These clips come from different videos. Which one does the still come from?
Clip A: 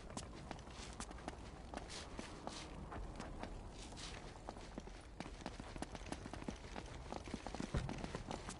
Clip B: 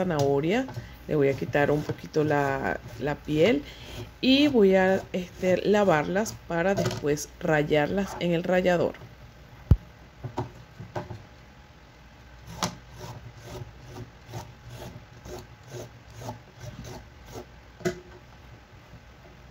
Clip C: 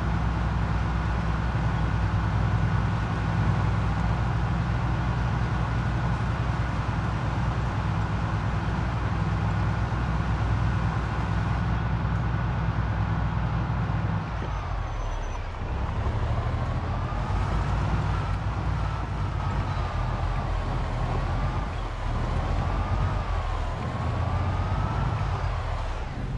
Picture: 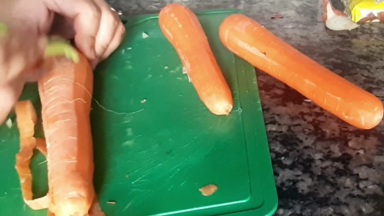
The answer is B